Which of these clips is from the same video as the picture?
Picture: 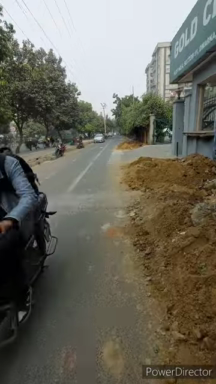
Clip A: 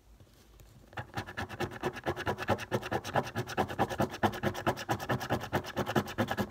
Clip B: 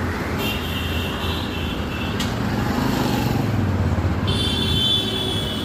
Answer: B